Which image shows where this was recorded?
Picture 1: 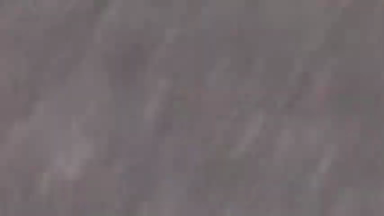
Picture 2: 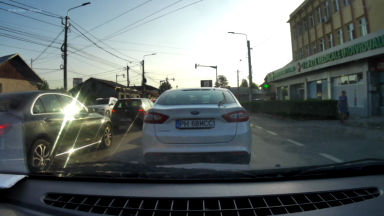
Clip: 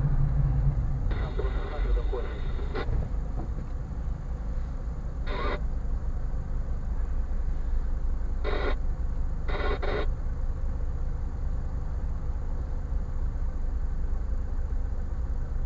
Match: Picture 2